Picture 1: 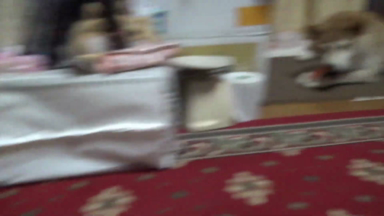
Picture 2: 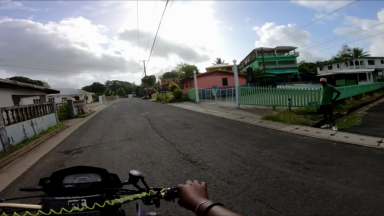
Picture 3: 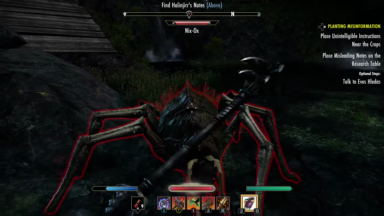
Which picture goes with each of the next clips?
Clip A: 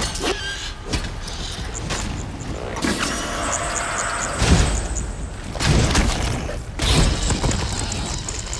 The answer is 3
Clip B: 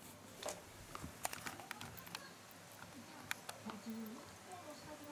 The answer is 1